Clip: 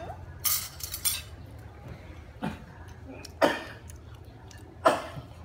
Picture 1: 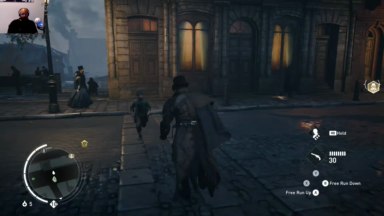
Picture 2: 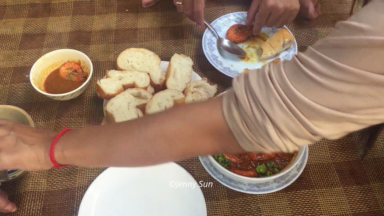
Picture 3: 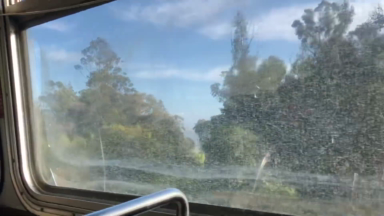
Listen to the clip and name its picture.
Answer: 2